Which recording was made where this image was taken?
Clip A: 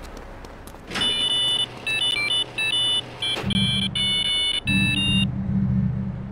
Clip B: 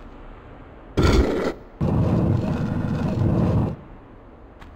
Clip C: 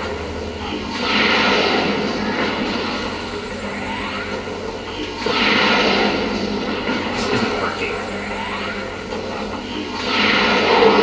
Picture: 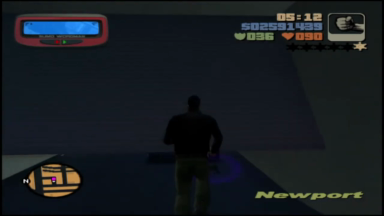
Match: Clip A